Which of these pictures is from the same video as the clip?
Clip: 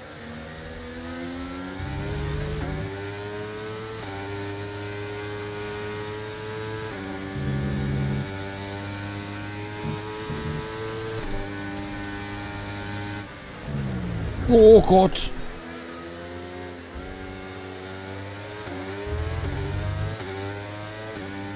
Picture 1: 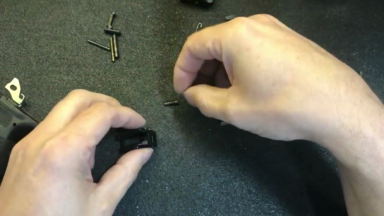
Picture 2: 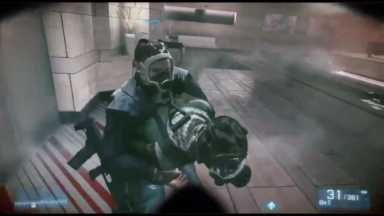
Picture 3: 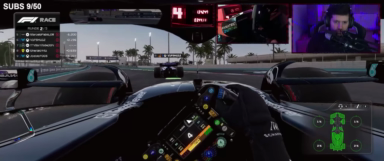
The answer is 3